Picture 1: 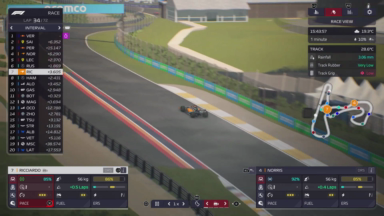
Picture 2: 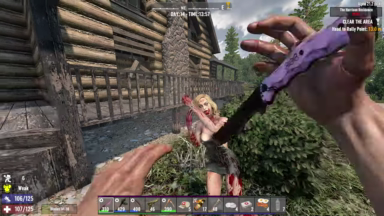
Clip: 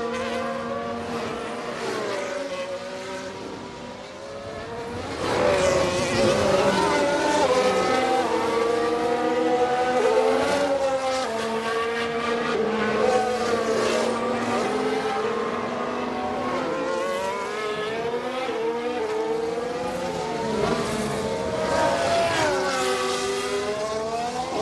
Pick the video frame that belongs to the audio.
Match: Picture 1